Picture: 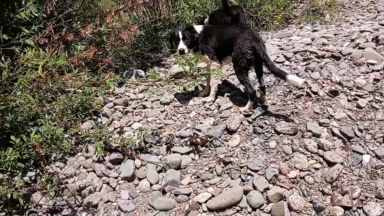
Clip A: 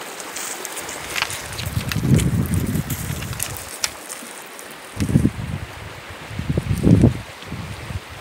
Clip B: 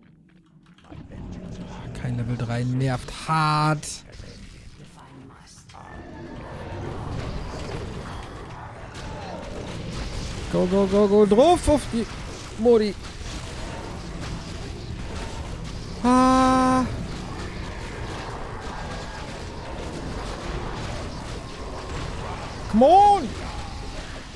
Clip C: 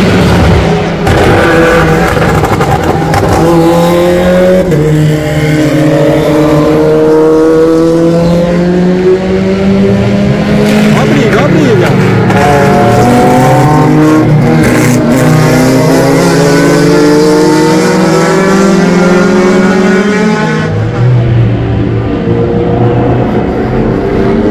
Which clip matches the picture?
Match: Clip A